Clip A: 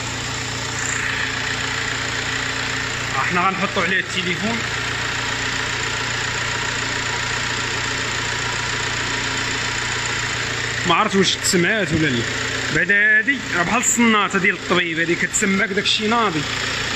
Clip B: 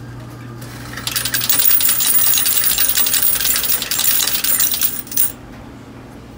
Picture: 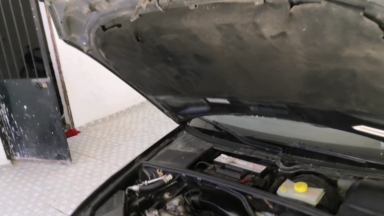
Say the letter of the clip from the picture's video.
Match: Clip A